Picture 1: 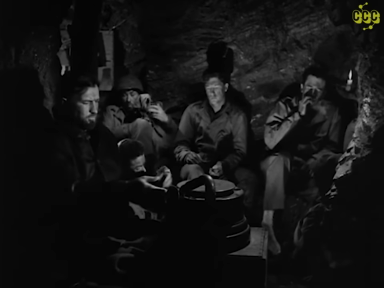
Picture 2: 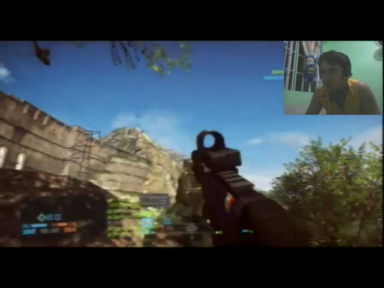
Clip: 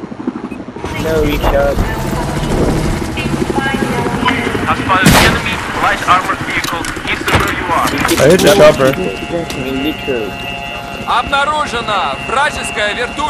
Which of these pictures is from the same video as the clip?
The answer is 2